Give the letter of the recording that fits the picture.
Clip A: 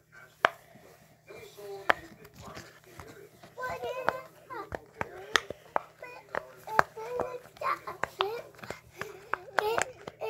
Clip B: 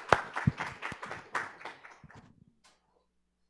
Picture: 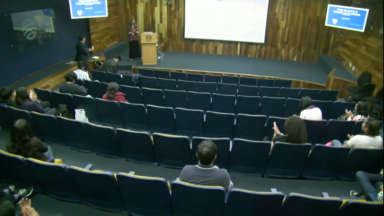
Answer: B